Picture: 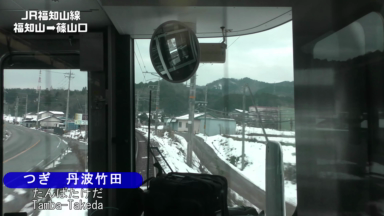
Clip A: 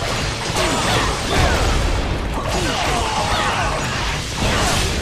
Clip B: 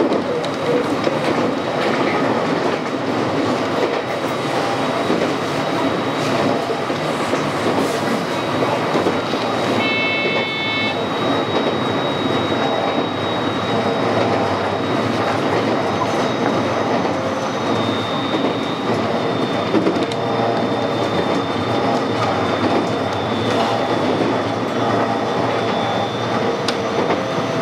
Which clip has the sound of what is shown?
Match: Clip B